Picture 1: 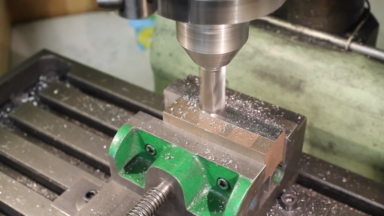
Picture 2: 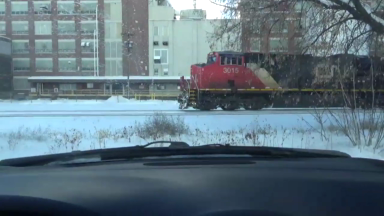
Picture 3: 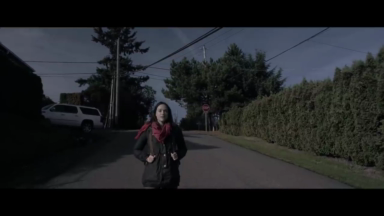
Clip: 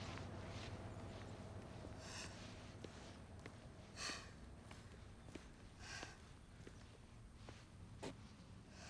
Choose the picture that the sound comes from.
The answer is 3